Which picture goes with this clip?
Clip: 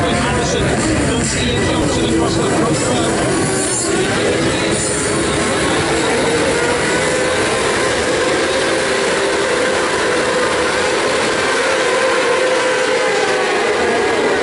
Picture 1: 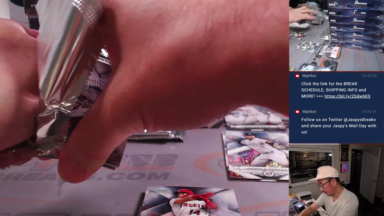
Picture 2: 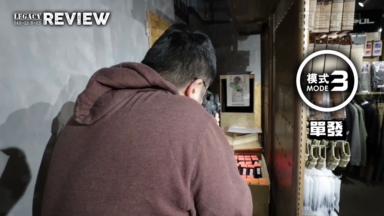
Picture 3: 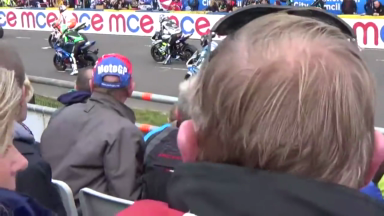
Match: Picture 3